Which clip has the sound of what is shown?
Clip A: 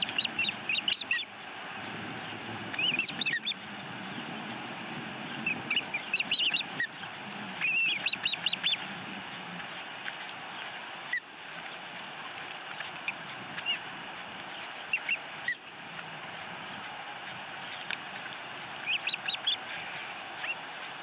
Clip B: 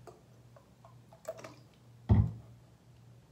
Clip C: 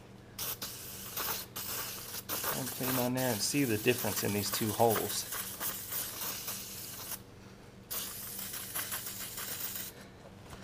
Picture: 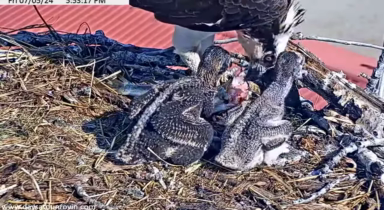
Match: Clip A